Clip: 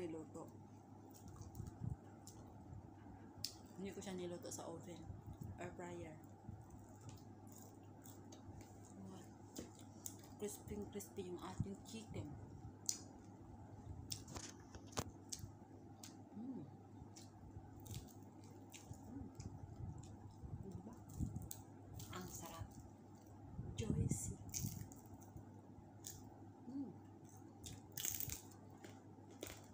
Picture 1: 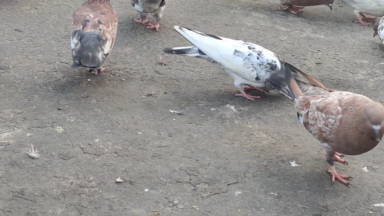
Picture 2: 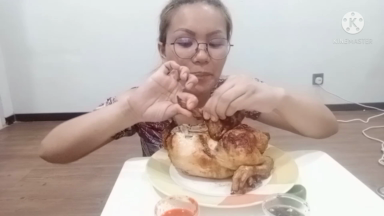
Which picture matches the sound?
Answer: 2